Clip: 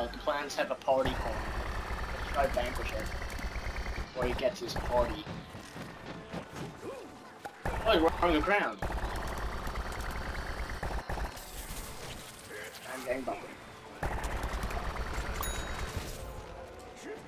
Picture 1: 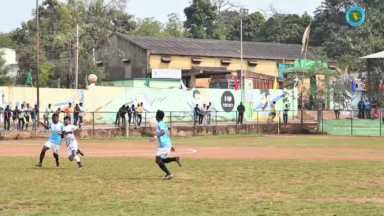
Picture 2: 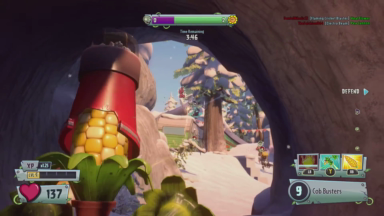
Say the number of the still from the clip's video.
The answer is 2